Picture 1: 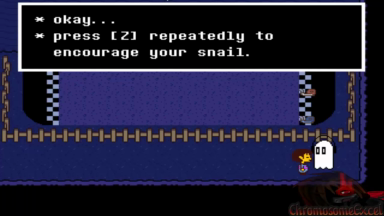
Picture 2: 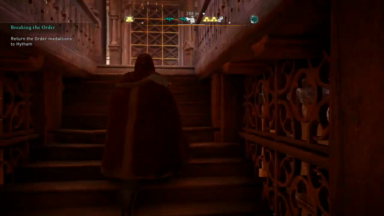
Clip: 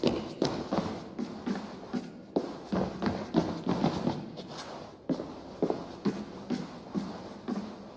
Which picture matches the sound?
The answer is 2